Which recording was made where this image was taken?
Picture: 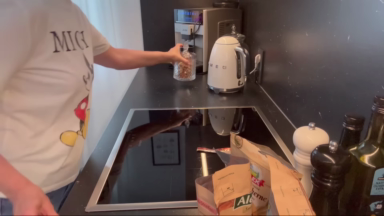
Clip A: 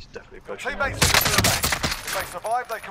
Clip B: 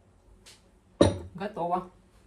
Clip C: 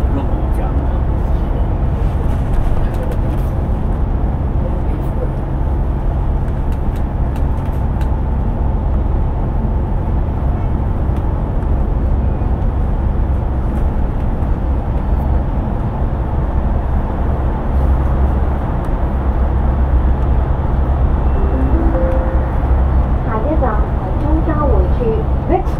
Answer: B